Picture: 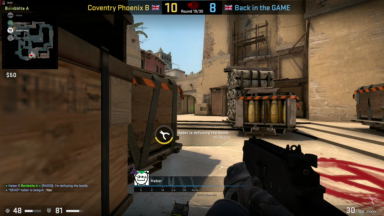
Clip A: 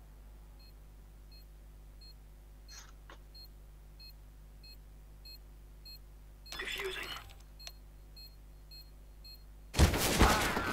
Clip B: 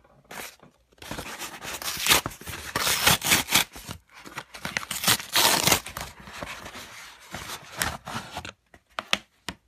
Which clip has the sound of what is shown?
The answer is A